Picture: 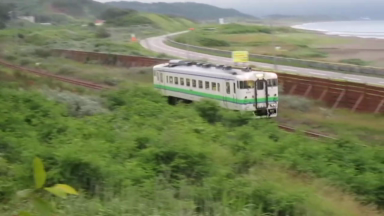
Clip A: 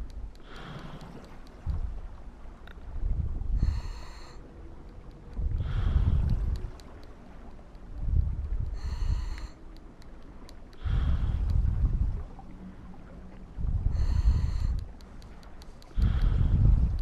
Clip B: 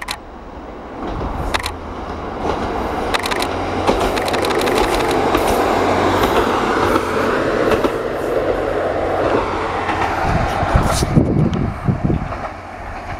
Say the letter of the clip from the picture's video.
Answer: B